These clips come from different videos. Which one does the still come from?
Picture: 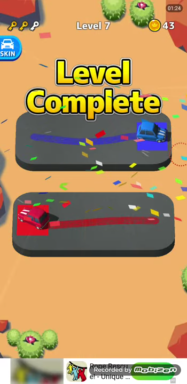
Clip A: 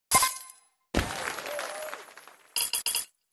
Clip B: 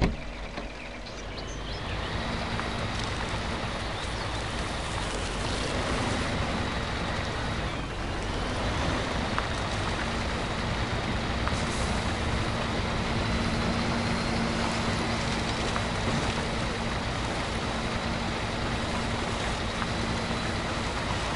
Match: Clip A